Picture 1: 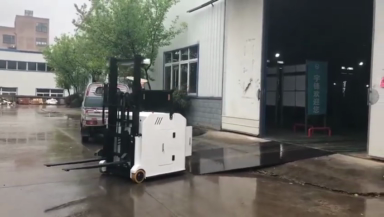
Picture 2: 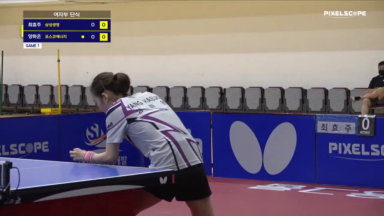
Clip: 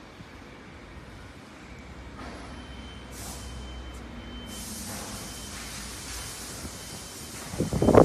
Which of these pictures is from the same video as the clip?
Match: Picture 1